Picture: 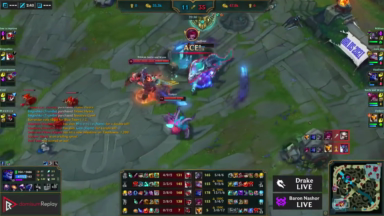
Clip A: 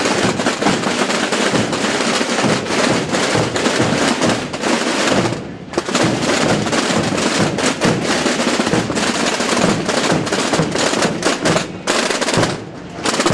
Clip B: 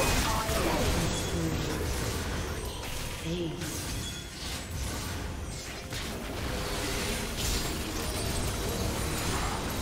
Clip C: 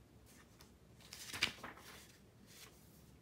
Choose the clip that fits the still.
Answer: B